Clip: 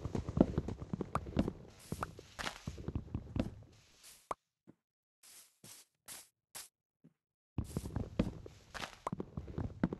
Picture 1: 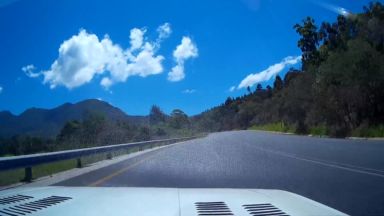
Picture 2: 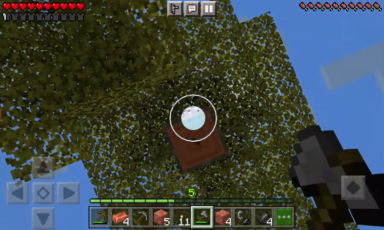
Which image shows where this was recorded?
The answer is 2